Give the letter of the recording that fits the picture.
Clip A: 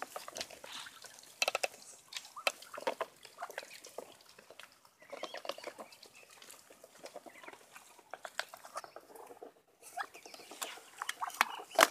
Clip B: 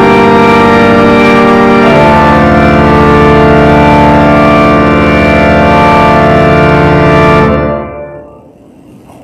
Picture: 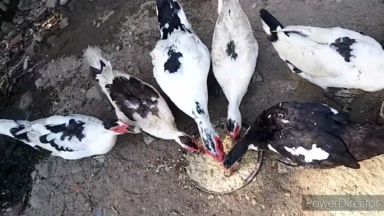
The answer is A